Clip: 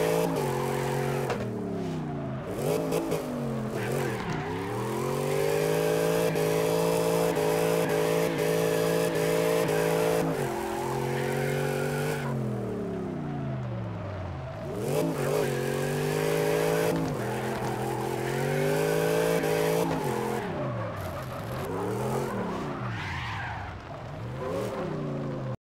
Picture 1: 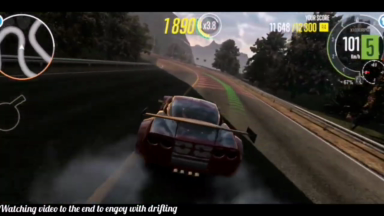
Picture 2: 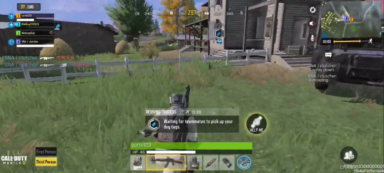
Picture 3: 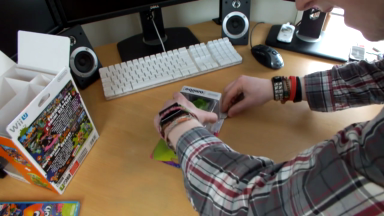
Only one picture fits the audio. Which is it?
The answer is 1